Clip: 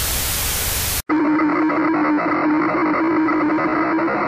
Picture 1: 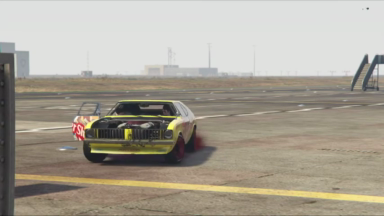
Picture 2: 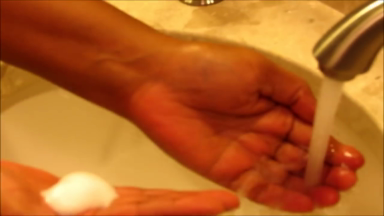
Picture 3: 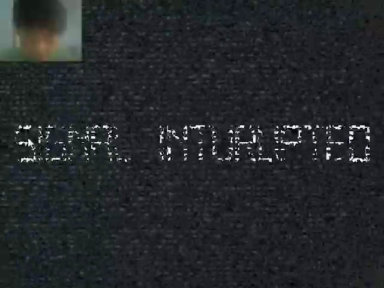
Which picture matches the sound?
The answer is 3